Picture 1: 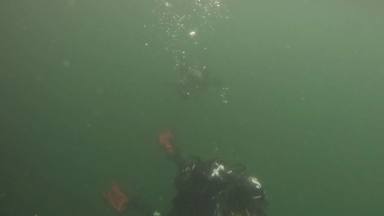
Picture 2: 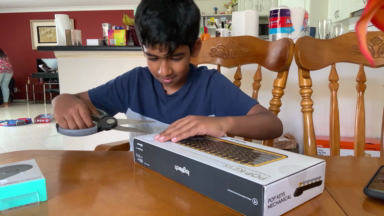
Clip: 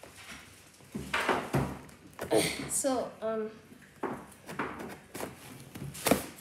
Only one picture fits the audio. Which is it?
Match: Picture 2